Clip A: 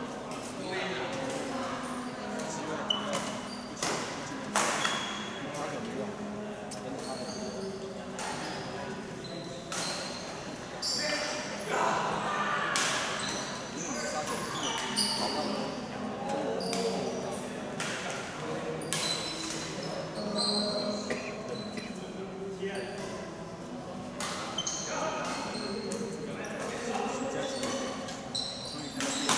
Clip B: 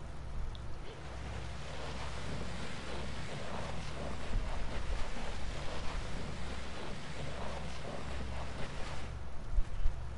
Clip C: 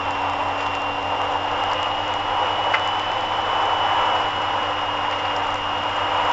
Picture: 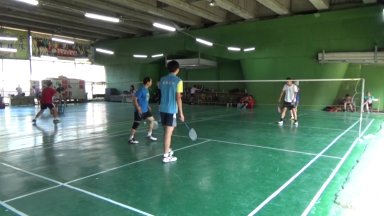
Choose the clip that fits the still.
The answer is A